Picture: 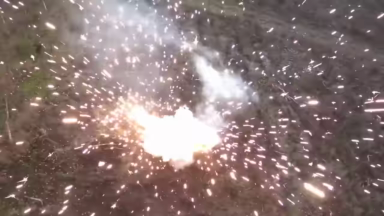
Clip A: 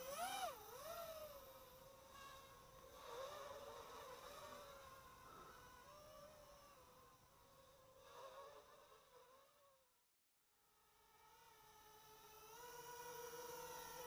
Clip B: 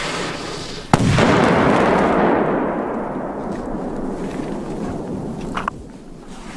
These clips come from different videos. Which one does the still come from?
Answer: B